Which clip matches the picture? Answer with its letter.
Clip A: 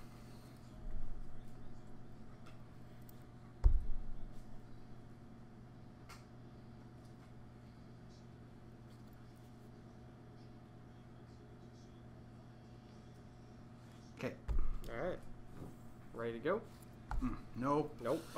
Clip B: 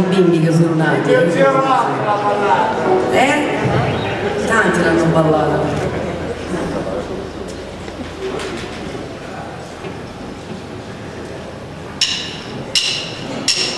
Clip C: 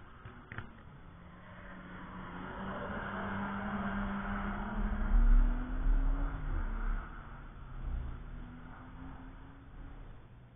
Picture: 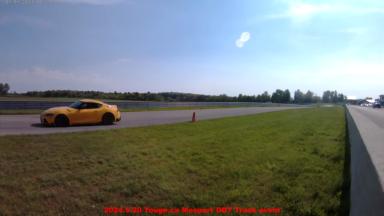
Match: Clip C